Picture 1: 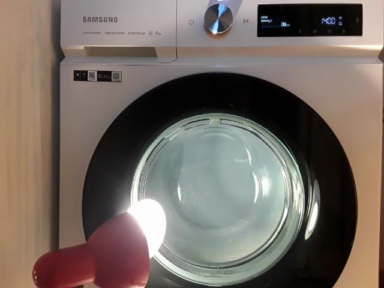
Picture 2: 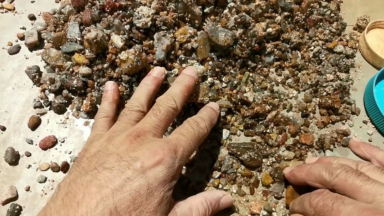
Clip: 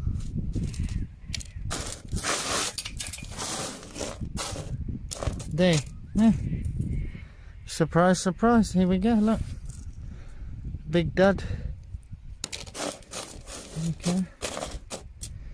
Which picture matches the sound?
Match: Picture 2